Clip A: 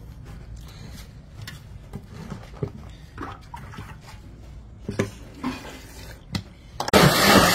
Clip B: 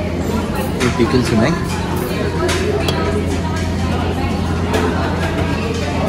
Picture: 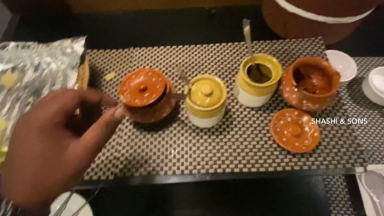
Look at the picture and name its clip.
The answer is B